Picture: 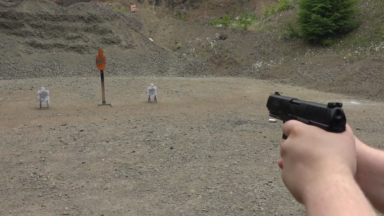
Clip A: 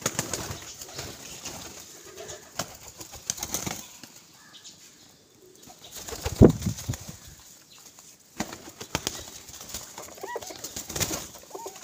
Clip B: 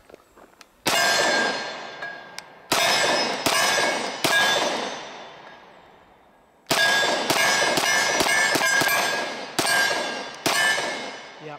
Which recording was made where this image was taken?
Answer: B